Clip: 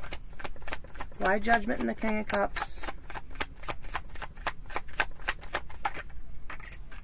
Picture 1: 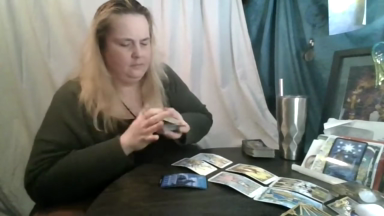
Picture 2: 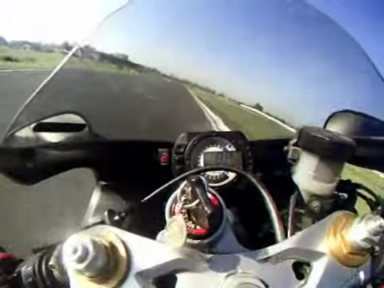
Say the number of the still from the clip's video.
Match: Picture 1